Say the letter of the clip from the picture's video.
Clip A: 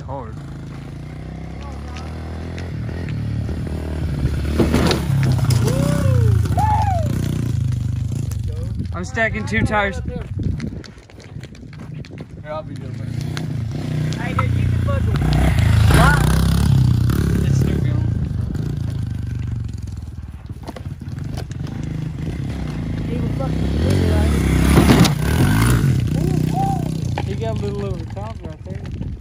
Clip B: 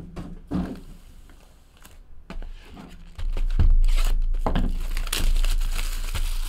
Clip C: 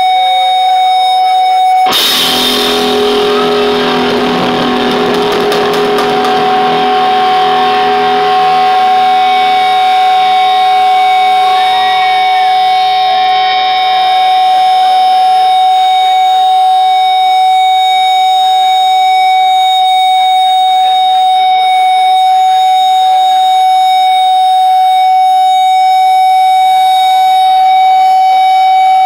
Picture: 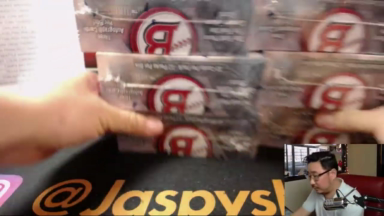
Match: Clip B